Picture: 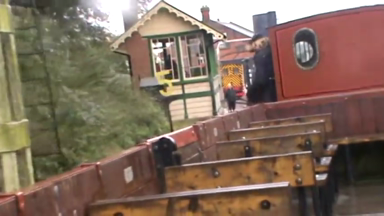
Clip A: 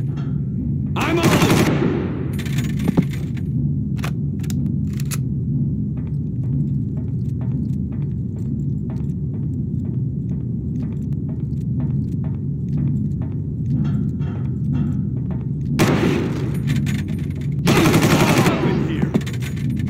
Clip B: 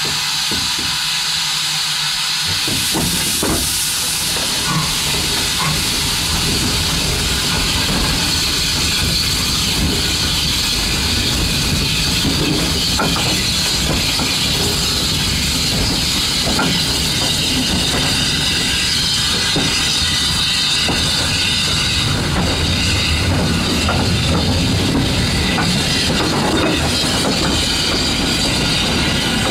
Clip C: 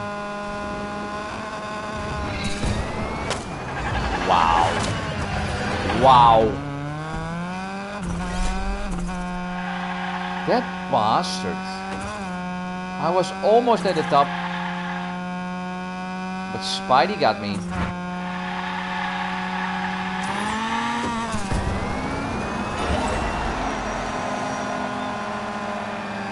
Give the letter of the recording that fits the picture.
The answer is B